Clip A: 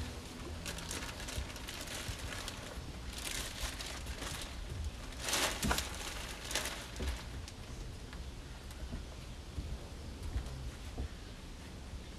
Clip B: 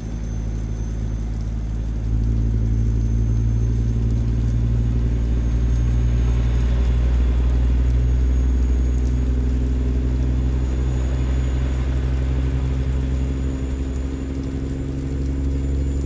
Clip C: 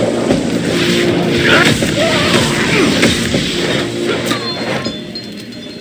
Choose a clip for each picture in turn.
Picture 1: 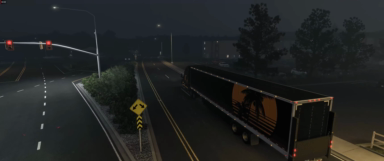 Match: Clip B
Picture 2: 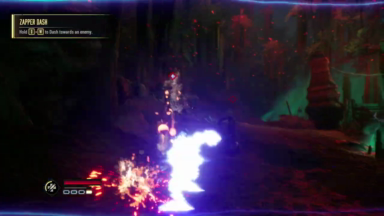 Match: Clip C